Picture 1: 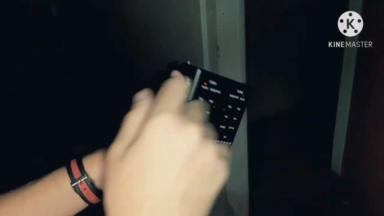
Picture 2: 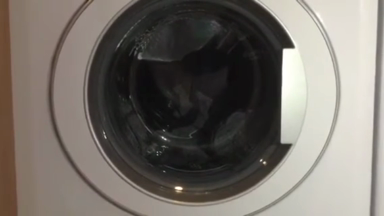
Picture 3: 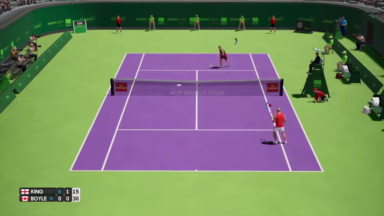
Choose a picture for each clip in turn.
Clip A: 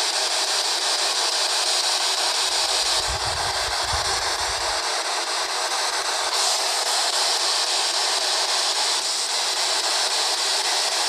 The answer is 1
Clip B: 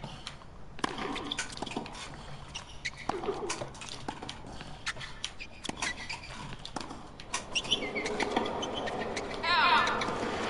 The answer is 3